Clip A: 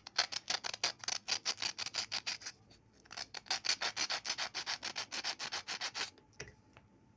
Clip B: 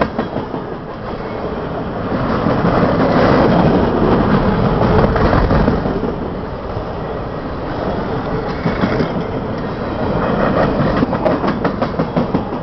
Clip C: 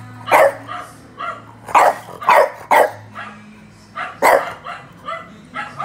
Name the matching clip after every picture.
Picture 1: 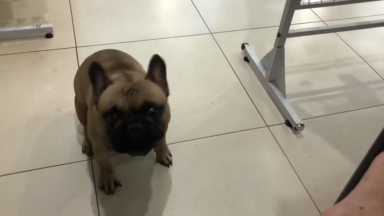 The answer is C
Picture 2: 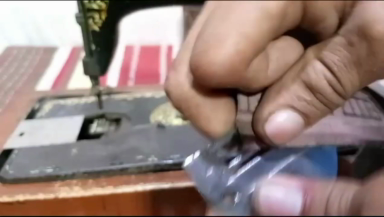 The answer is A